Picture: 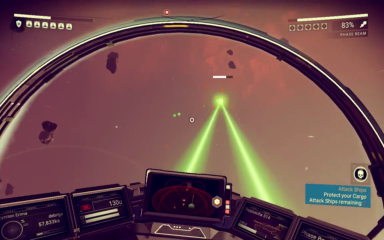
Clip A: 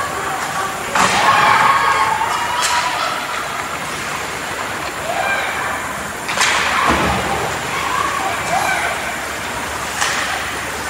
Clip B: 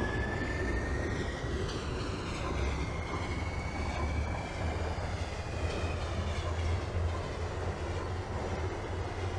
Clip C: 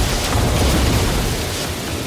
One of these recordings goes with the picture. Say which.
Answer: C